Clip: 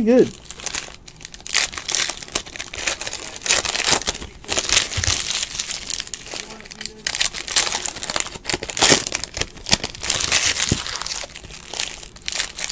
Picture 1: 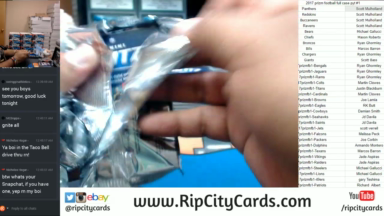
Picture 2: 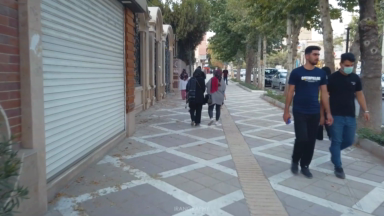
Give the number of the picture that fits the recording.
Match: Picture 1